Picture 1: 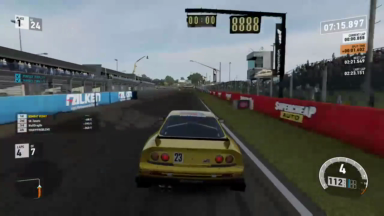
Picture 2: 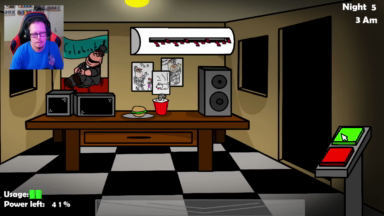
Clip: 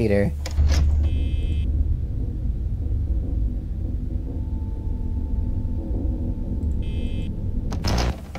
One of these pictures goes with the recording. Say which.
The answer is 2